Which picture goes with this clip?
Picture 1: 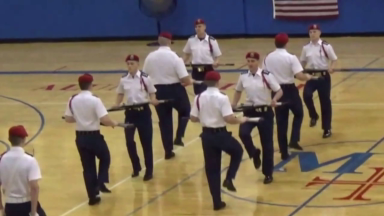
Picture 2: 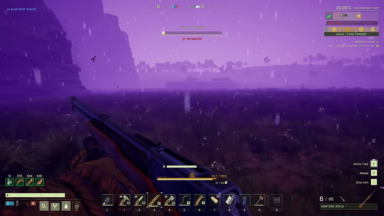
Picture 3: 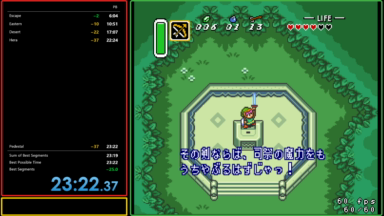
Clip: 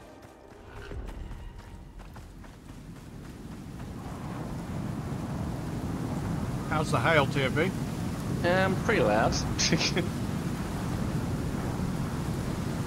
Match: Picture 2